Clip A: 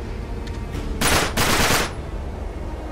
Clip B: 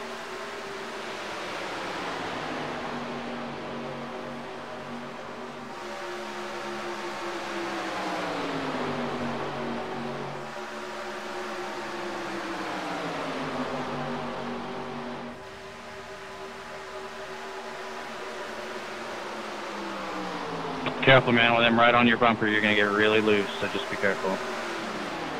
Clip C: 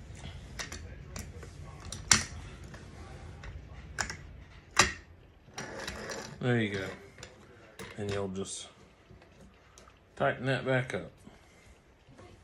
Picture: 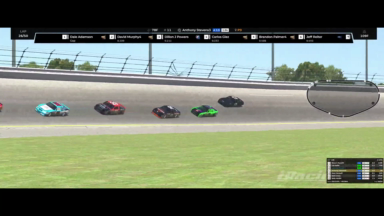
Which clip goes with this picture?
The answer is B